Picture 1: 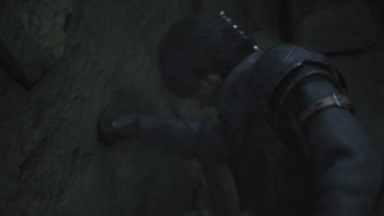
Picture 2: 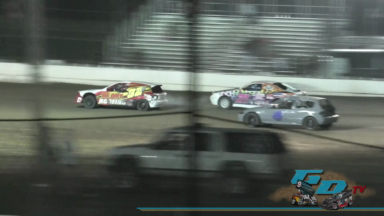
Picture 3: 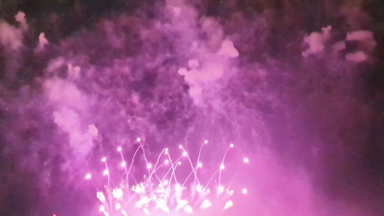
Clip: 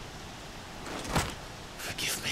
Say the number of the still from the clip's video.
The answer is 1